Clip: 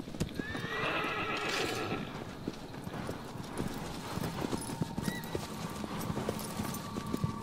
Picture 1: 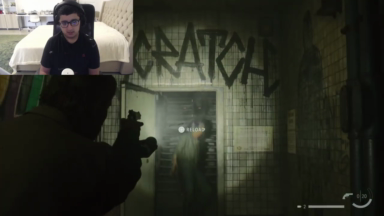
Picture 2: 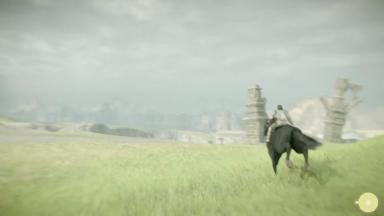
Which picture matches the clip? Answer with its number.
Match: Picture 2